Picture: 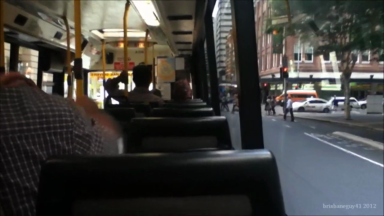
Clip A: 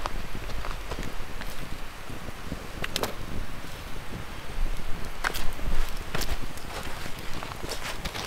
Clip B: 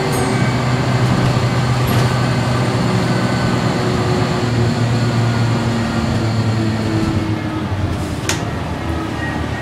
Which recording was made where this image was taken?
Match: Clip B